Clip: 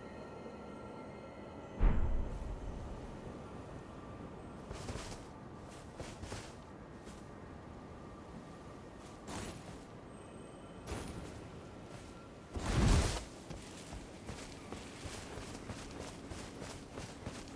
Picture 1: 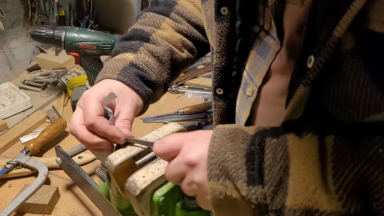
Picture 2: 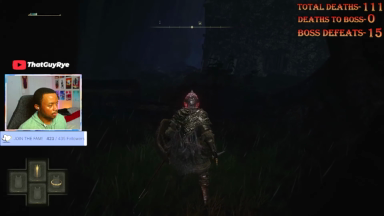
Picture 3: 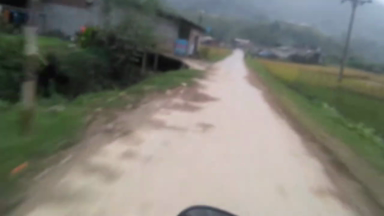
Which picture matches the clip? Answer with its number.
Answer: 2